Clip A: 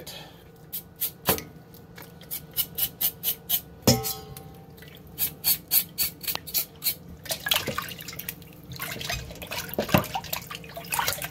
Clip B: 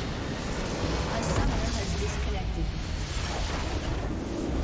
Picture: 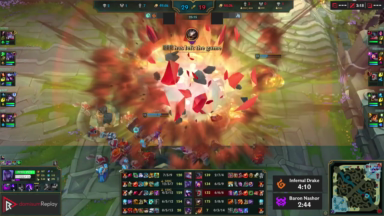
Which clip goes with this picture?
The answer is B